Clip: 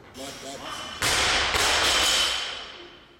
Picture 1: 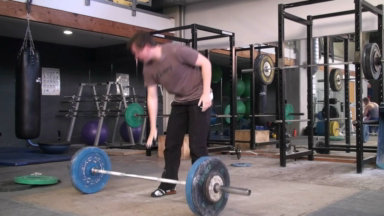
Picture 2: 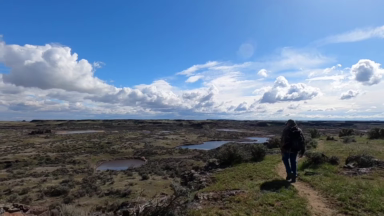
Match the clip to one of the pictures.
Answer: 1